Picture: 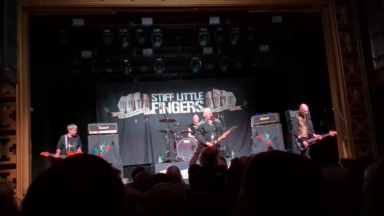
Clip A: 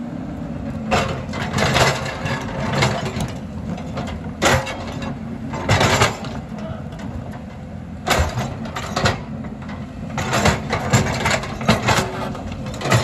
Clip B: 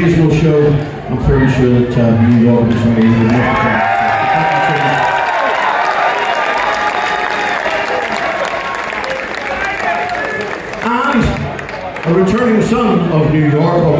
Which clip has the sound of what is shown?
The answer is B